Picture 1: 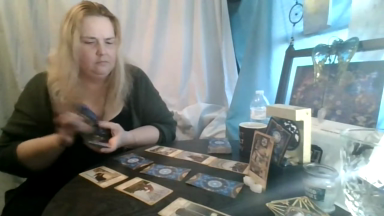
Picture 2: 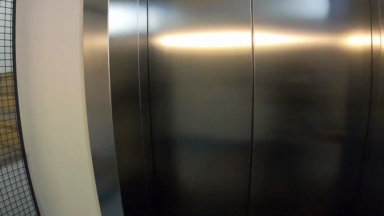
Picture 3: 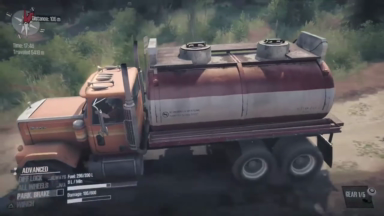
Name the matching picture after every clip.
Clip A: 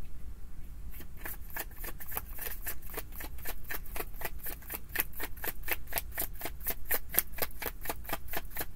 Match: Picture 1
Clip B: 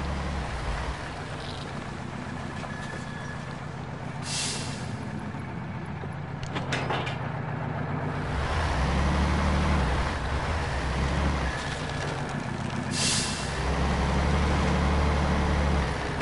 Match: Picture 3